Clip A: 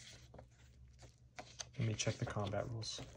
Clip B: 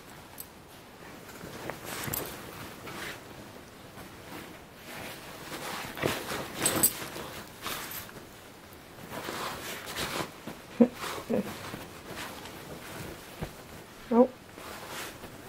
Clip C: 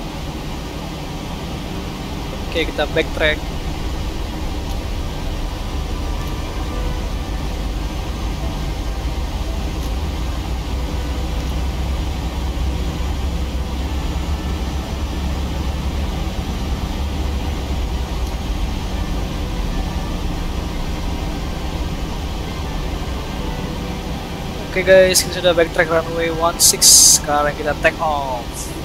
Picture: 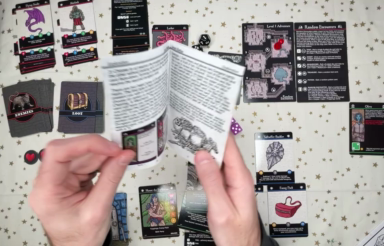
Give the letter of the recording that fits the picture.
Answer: A